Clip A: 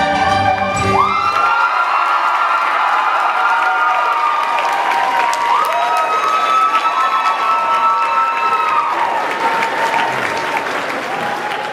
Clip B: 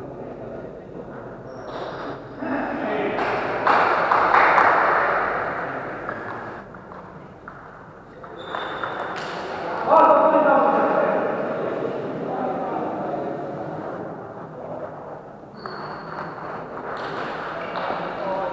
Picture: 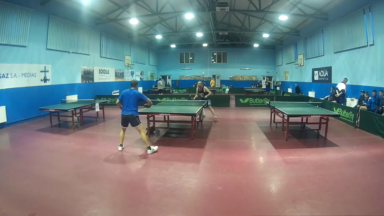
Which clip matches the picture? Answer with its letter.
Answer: B